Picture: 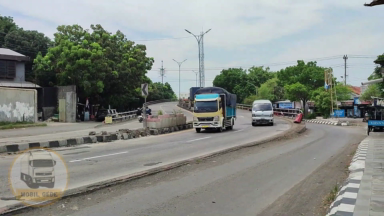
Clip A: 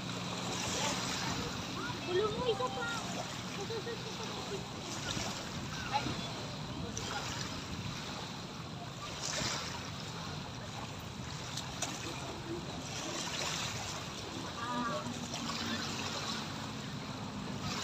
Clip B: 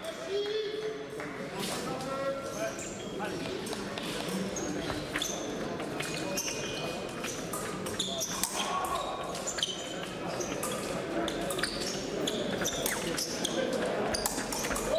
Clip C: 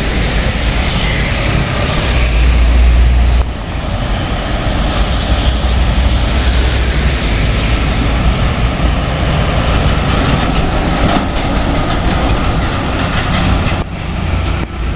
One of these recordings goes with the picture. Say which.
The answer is C